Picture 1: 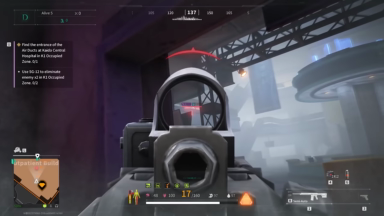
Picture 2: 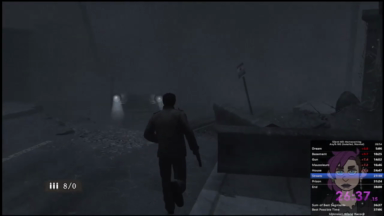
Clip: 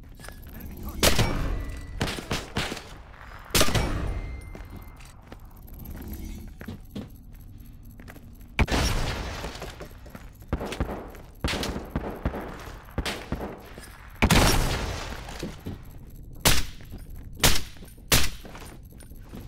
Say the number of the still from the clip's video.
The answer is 1